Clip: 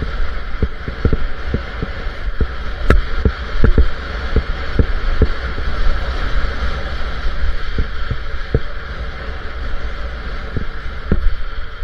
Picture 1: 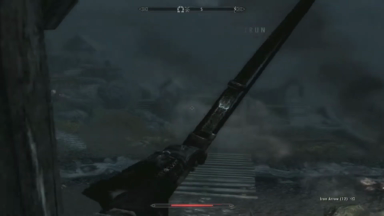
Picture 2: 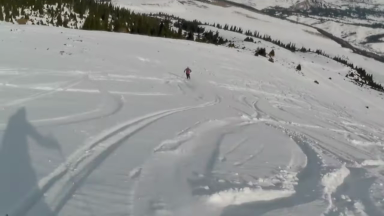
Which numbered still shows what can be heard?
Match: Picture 2